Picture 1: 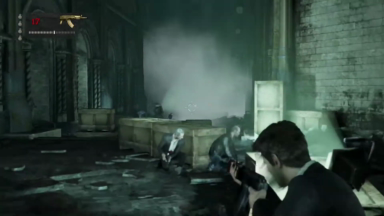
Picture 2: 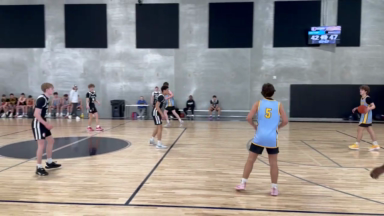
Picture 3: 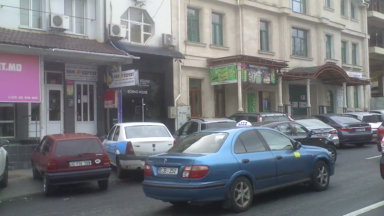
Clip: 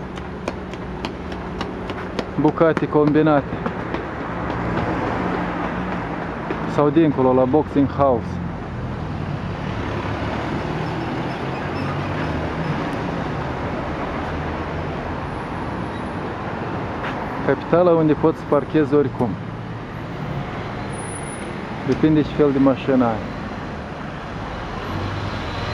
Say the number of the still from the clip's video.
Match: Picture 3